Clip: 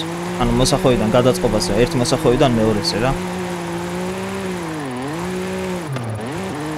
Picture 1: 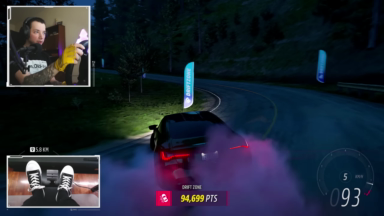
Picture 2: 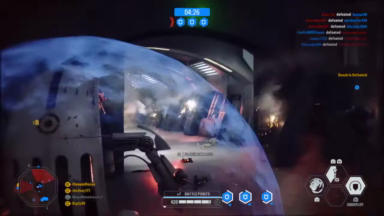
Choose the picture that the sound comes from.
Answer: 1